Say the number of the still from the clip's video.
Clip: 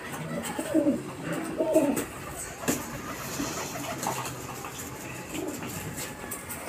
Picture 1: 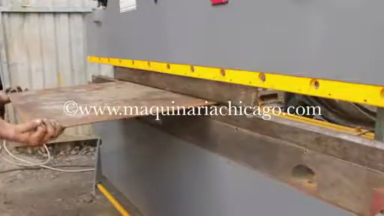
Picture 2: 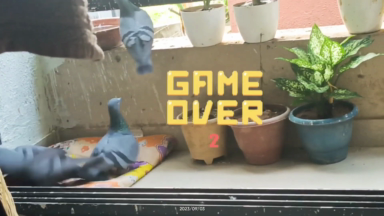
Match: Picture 2